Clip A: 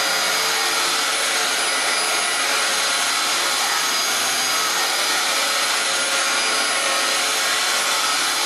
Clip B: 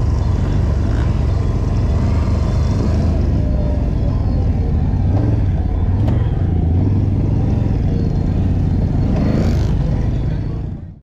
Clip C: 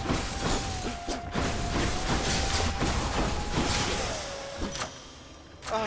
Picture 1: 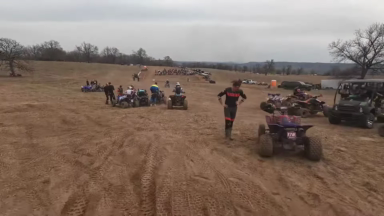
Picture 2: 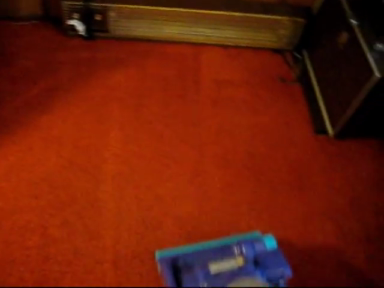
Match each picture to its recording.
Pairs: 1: B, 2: A